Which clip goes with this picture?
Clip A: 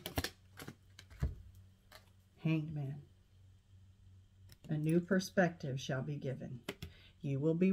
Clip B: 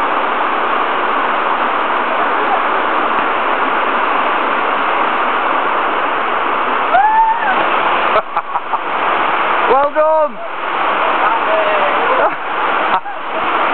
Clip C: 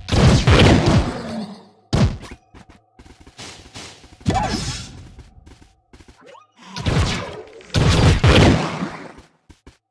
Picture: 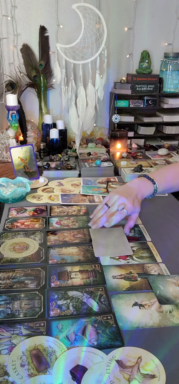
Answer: A